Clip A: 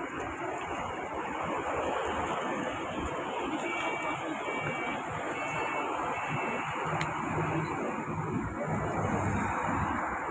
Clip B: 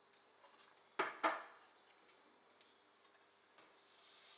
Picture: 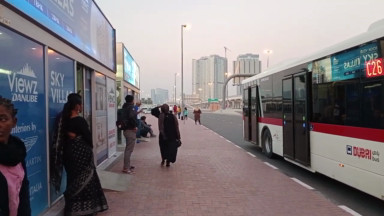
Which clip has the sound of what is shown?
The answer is A